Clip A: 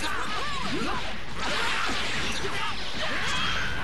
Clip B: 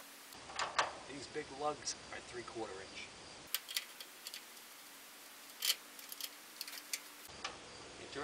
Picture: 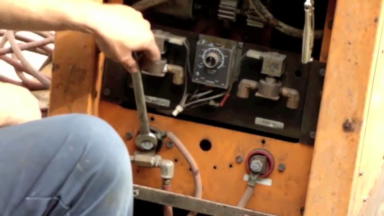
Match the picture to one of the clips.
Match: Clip B